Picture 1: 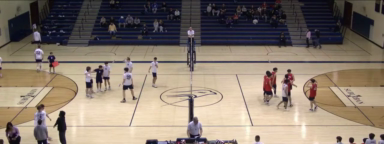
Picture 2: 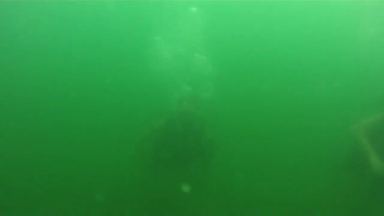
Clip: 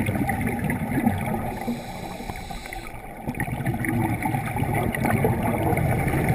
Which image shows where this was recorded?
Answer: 2